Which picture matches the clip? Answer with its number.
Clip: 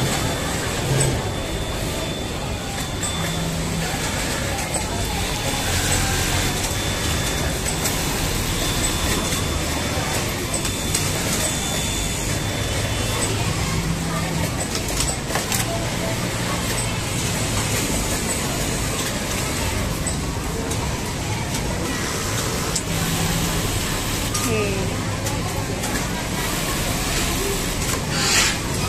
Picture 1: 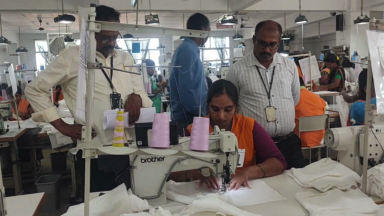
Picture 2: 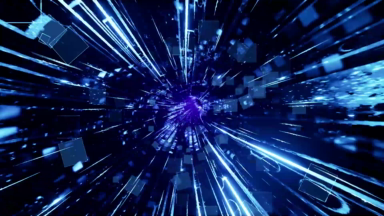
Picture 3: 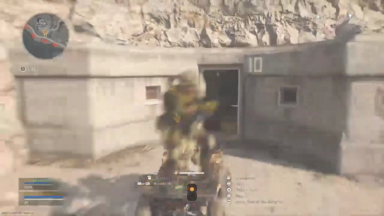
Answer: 1